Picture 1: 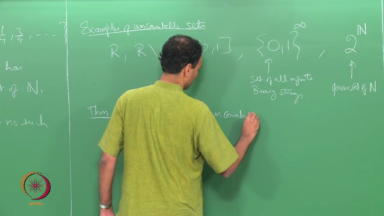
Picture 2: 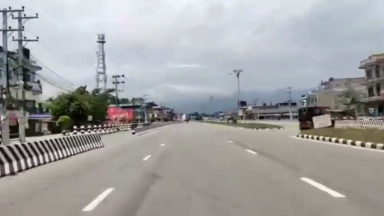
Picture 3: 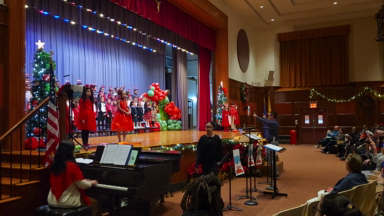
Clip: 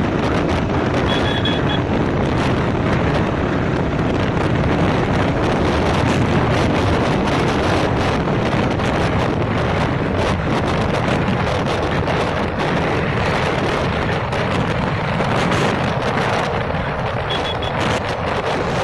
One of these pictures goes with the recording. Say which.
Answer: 2